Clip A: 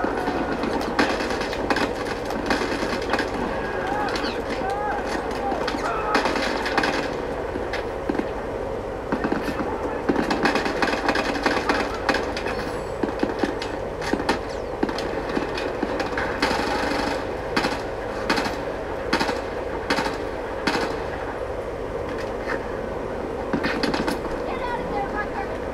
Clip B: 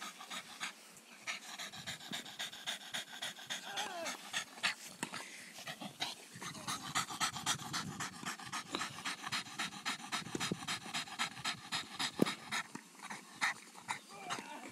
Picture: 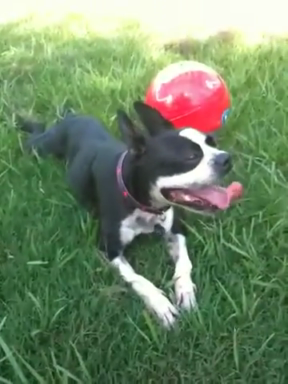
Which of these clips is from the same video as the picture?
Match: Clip B